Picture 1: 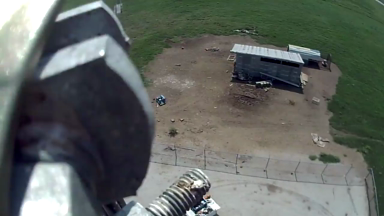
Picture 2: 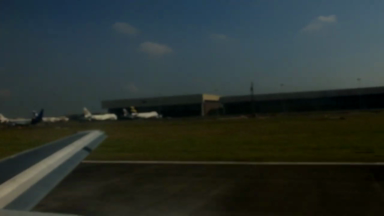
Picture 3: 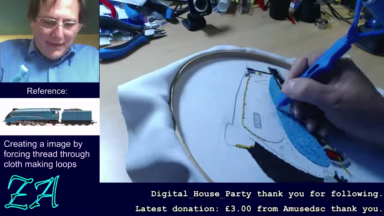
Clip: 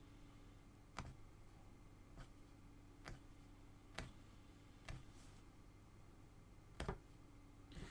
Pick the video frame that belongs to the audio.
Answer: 3